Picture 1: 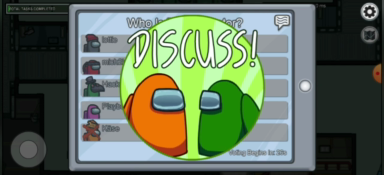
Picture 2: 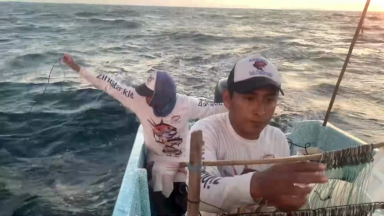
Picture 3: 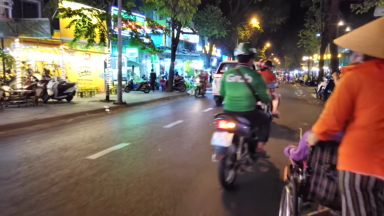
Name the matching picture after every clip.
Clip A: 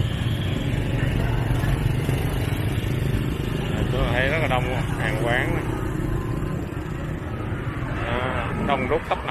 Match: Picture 3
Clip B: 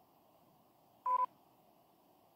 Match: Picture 1